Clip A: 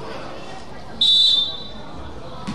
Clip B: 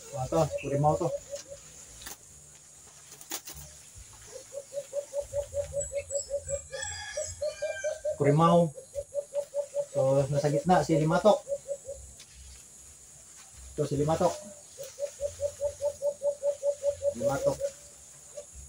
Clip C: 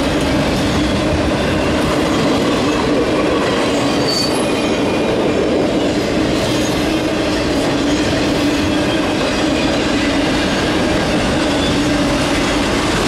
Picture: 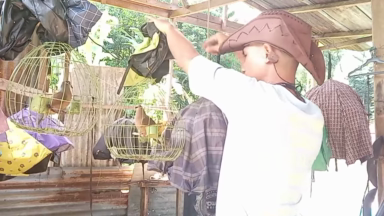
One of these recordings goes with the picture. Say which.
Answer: B